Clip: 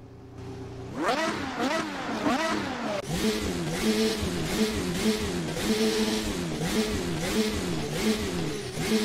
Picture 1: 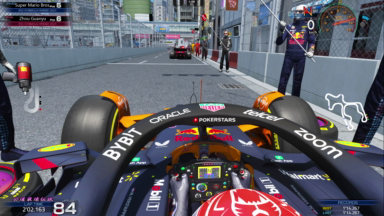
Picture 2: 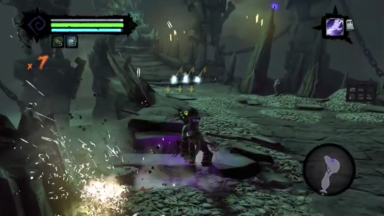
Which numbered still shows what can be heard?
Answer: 1